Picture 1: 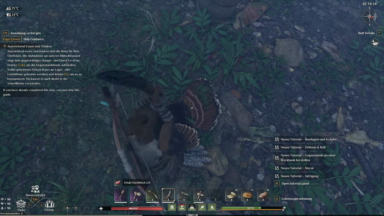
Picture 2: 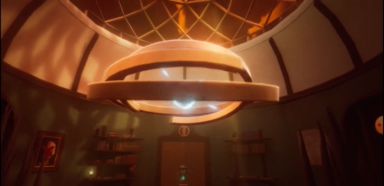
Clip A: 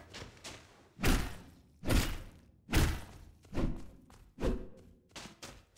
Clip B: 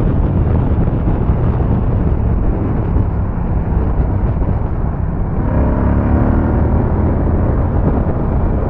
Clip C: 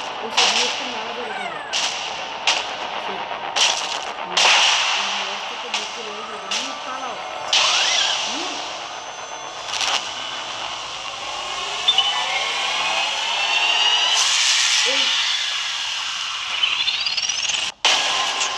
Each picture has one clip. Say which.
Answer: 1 A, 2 C